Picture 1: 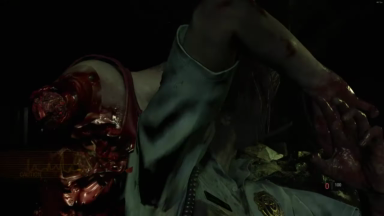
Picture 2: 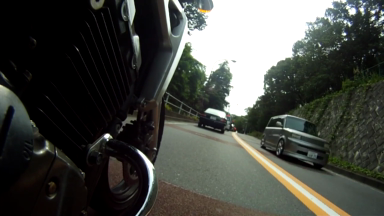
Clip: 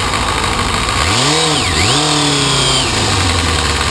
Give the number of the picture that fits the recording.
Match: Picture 2